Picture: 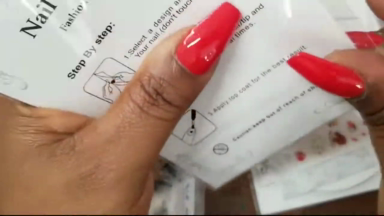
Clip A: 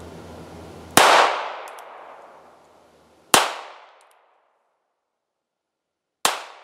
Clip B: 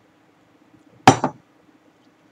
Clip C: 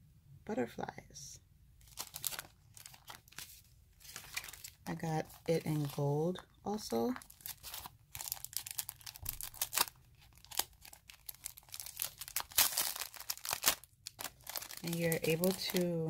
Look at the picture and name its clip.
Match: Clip C